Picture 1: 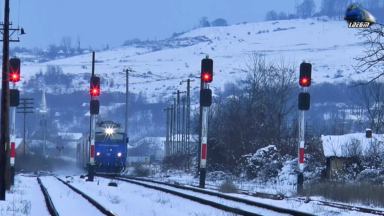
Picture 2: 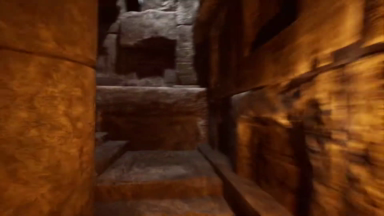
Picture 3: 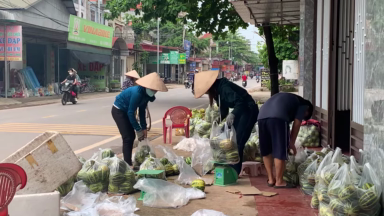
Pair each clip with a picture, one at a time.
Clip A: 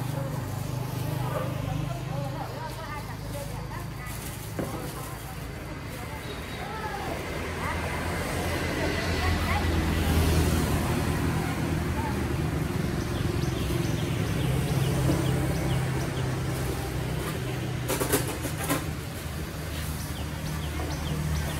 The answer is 3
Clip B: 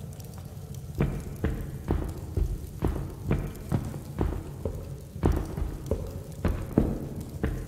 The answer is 2